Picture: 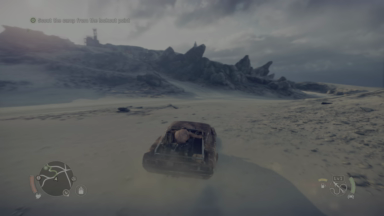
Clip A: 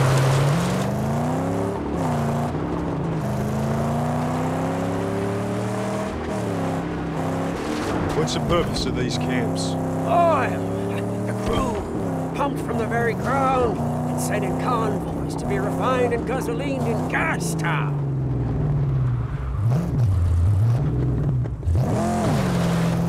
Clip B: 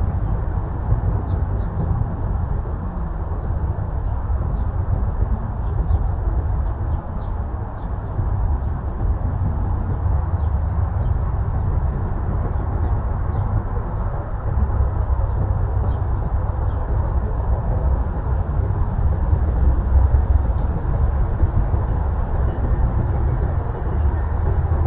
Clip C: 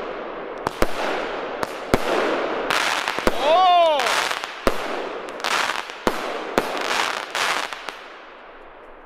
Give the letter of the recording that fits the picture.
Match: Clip A